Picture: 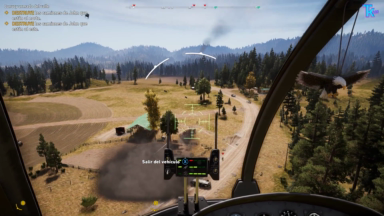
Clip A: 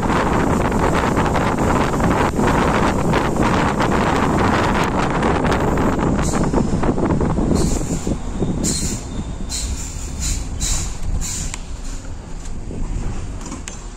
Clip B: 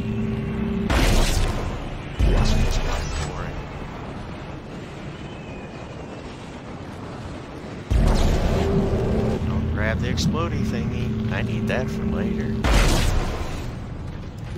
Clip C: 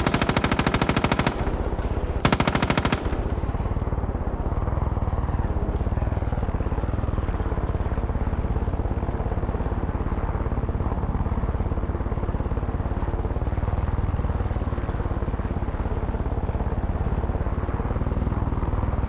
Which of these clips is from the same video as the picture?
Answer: C